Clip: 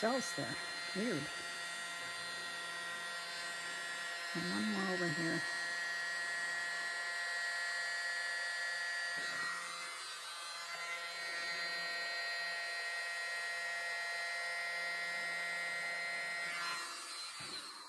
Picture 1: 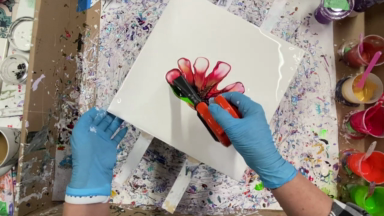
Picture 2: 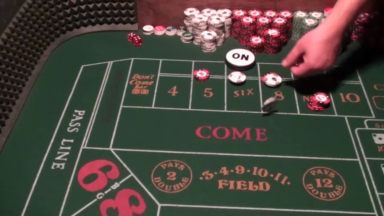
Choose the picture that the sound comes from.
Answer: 1